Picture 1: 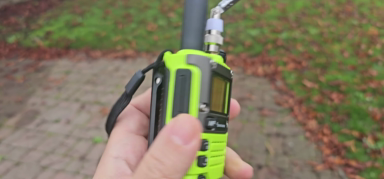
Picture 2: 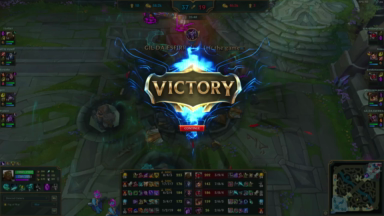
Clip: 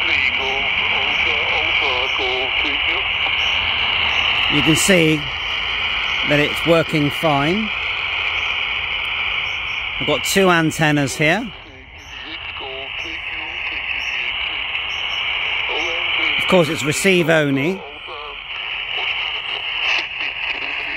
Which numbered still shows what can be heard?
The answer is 1